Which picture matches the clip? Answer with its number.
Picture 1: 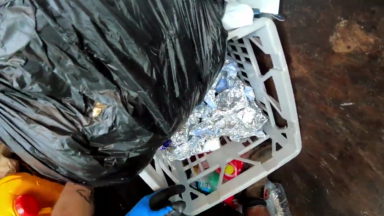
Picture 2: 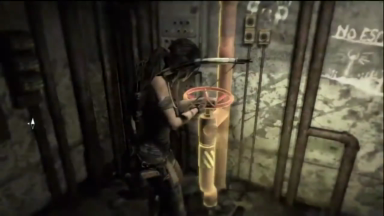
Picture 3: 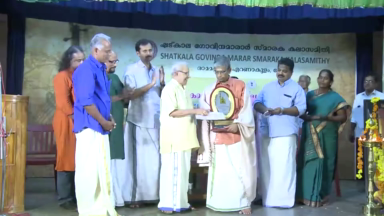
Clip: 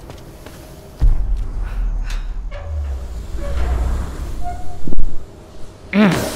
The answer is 2